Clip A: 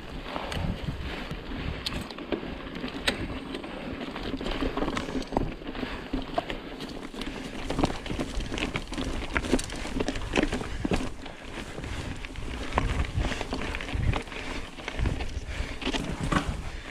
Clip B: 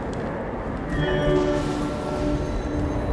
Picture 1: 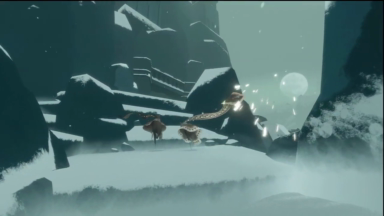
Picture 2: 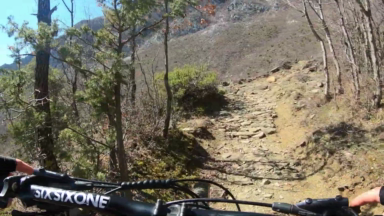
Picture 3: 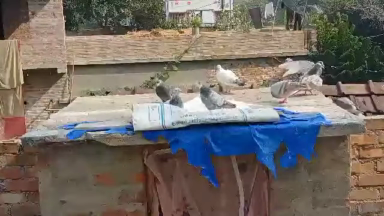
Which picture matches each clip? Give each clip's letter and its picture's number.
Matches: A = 2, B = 1